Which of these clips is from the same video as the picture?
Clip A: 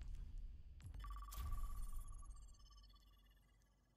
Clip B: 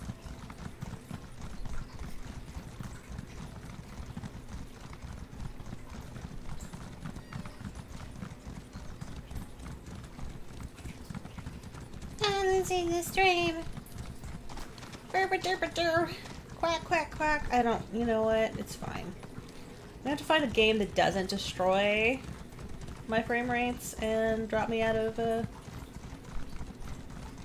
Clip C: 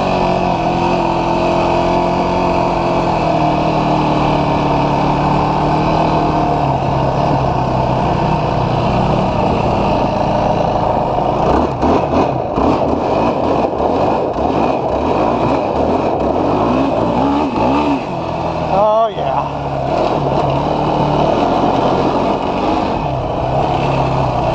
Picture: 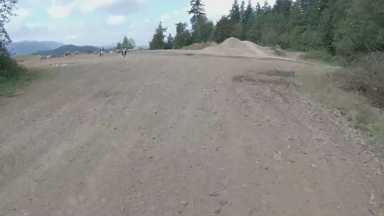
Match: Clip C